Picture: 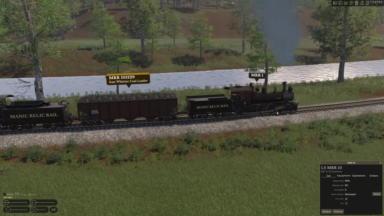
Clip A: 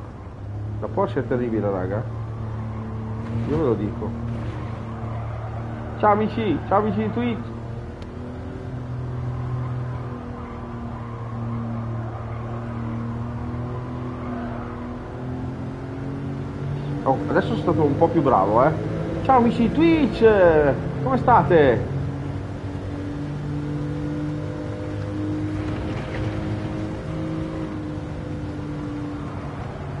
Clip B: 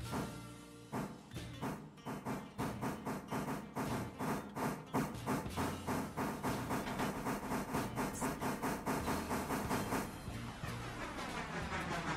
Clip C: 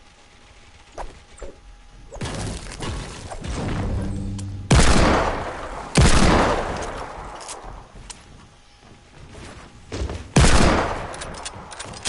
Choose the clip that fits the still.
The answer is B